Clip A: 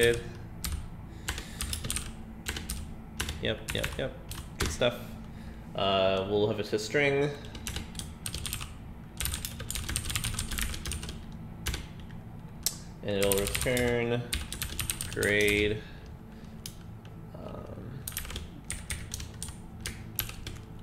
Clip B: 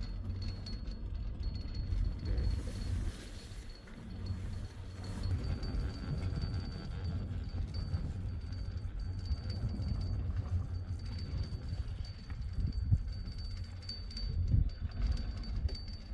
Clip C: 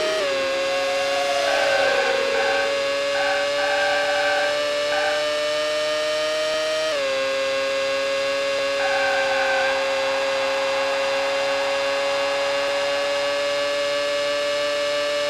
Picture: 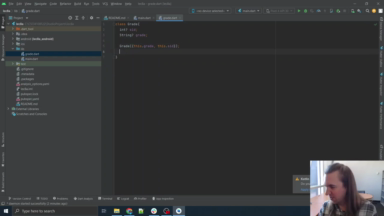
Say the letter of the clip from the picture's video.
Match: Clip A